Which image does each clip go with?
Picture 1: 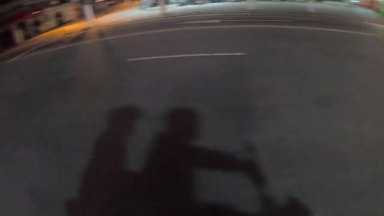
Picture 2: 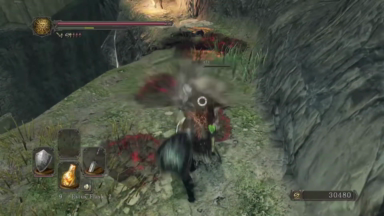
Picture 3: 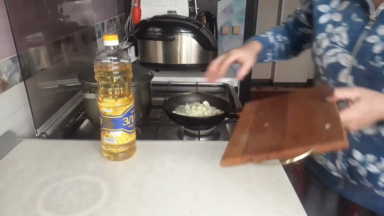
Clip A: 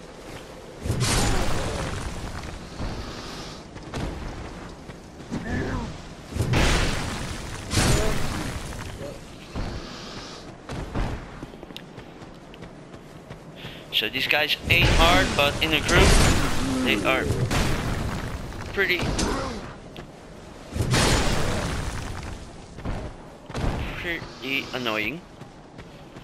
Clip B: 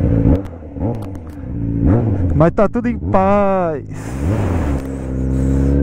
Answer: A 2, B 1